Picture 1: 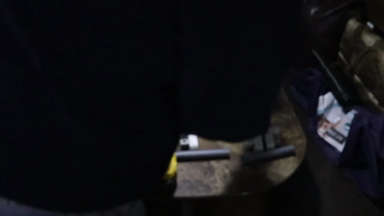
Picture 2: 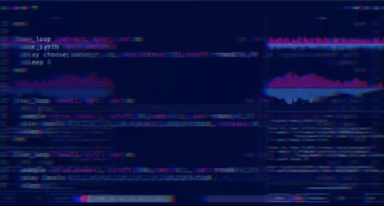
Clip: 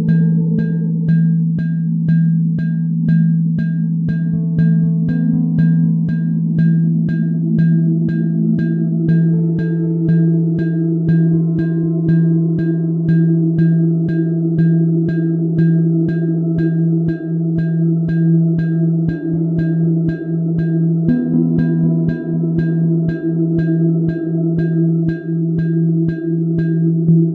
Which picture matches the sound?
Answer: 2